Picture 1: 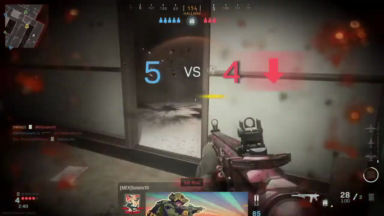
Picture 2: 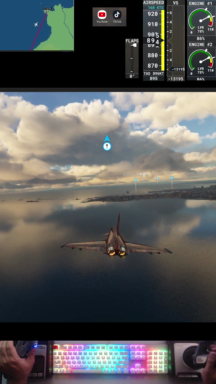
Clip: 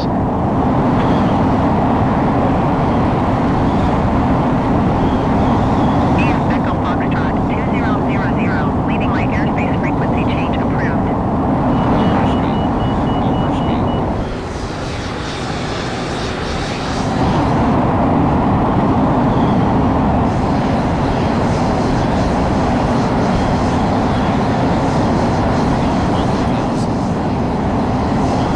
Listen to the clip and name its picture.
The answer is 2